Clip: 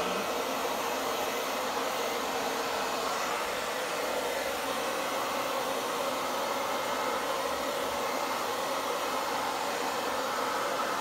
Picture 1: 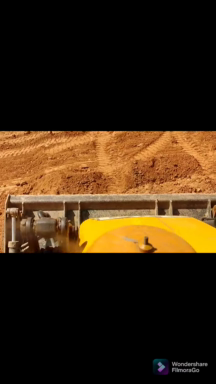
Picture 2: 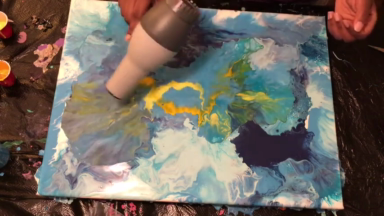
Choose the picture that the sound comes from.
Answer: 2